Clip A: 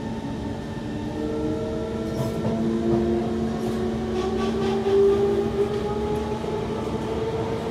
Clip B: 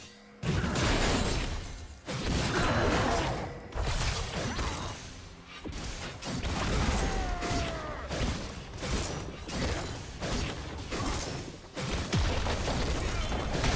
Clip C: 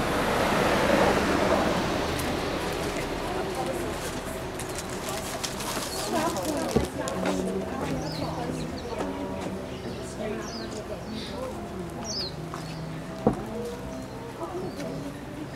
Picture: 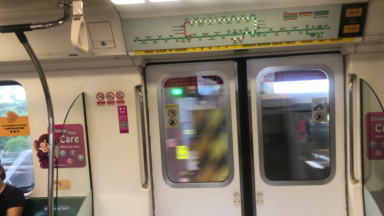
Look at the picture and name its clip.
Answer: A